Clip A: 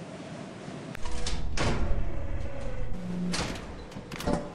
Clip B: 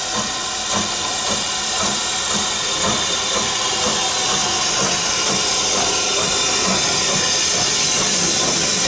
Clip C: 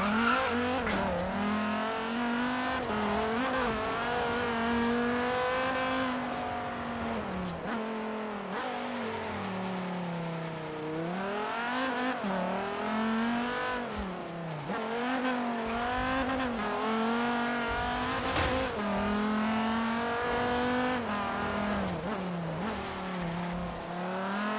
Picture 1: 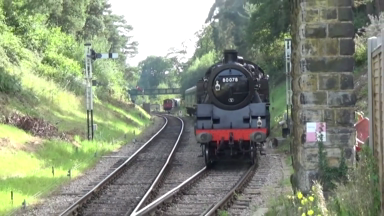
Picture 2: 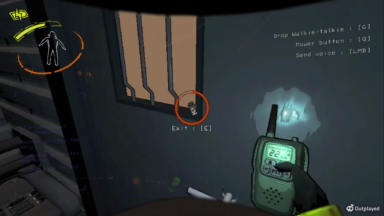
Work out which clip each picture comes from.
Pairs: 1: B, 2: A